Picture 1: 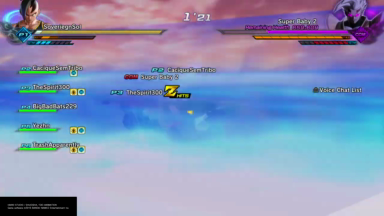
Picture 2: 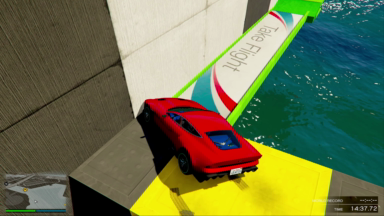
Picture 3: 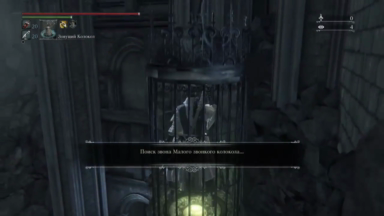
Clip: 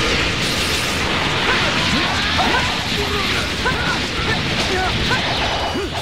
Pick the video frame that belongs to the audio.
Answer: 1